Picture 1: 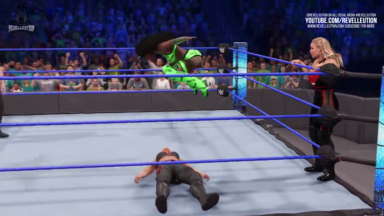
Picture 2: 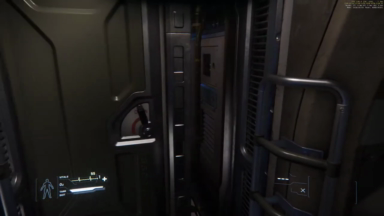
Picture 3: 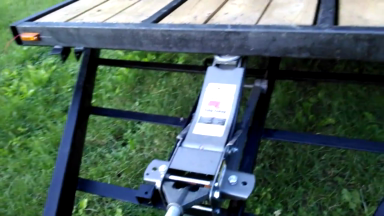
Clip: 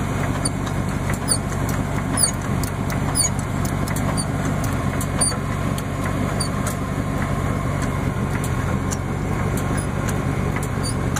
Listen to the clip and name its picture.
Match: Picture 3